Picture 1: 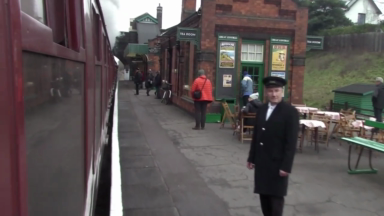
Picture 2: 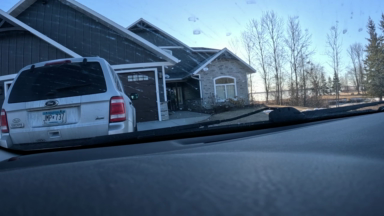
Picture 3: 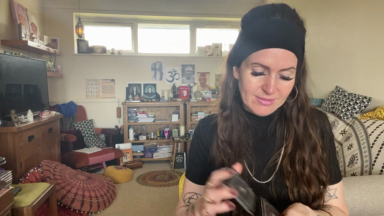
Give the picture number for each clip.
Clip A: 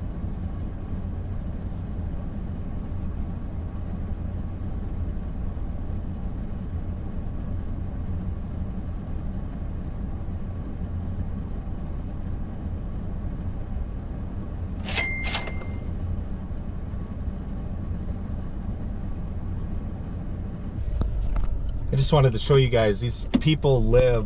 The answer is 2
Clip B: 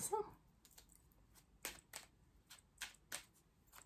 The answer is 3